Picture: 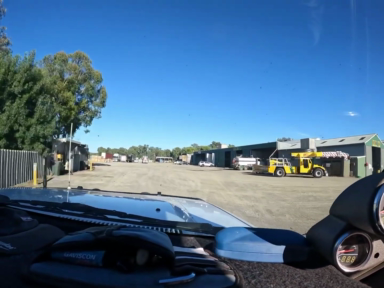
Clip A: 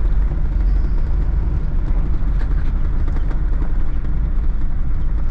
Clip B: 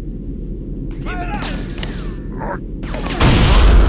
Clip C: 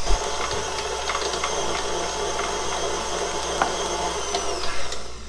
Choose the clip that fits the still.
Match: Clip A